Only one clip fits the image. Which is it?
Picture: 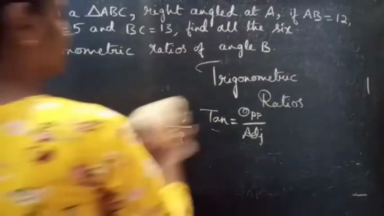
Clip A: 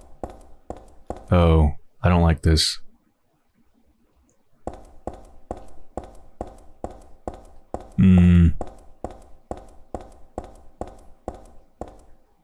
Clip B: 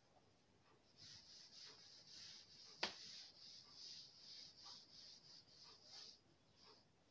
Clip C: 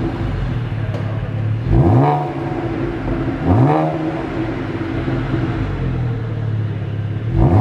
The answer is B